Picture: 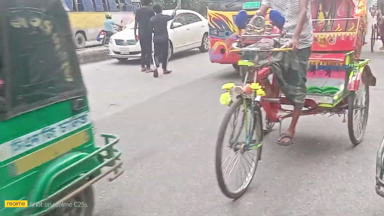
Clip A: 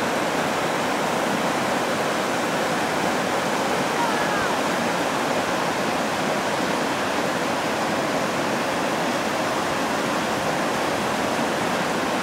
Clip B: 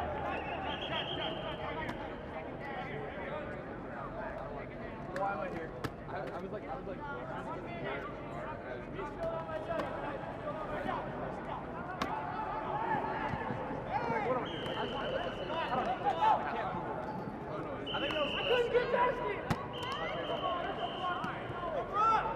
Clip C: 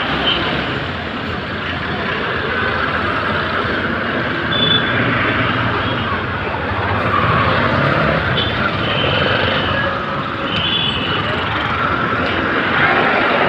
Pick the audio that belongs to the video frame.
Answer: C